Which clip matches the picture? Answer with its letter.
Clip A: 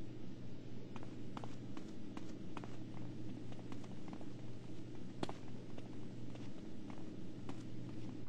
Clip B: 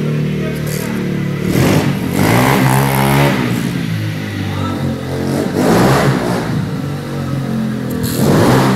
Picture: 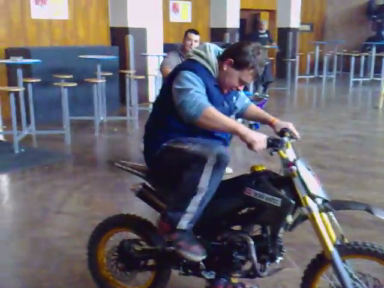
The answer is B